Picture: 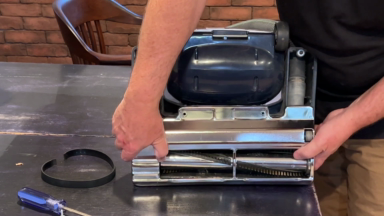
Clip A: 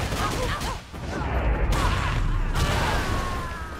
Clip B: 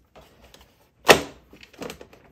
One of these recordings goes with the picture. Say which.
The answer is B